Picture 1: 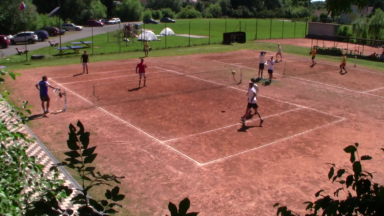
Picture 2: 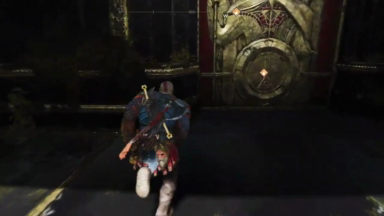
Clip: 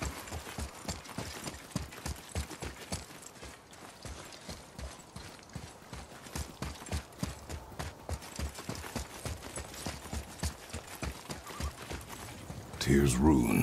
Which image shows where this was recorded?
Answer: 2